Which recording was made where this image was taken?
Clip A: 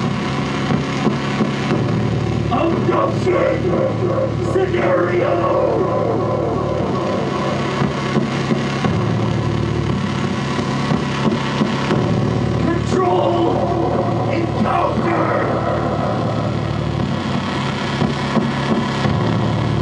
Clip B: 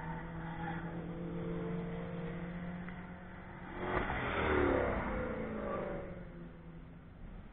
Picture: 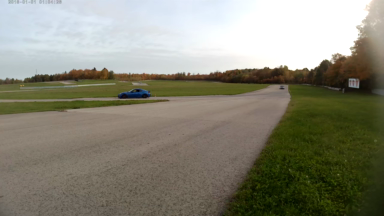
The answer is B